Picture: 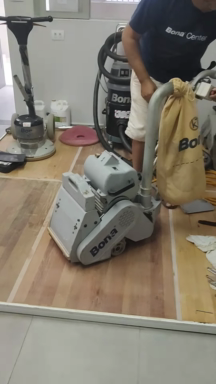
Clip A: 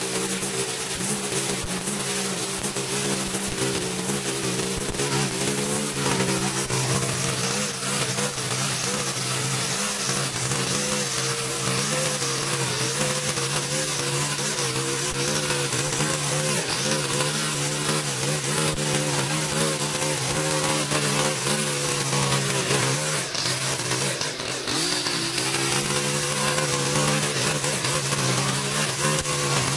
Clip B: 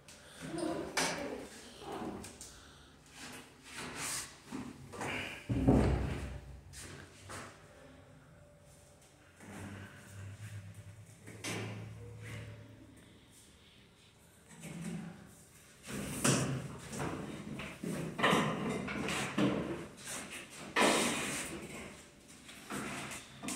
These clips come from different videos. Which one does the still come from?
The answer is B